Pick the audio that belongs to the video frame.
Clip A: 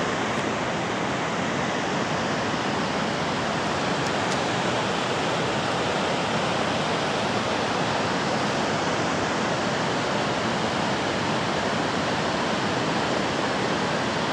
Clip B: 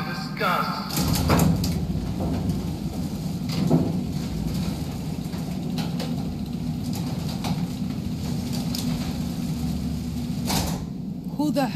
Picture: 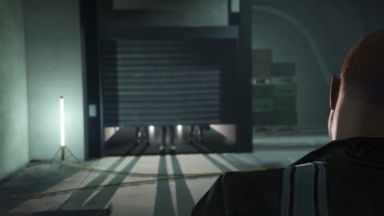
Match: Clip B